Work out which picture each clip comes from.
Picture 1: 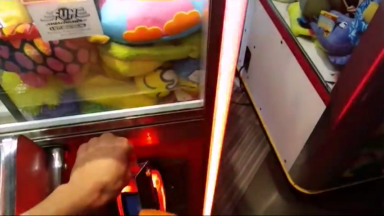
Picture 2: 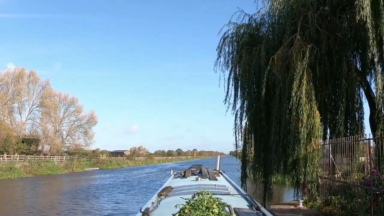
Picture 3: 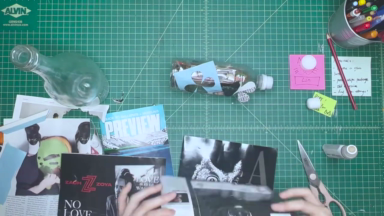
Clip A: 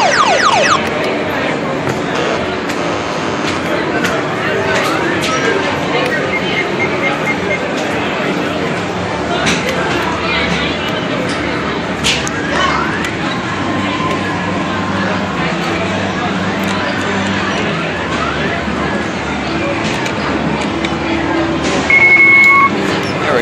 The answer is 1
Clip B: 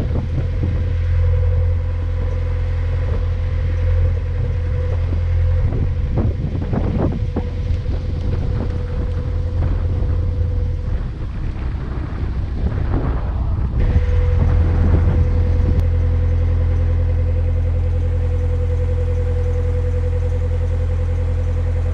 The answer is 2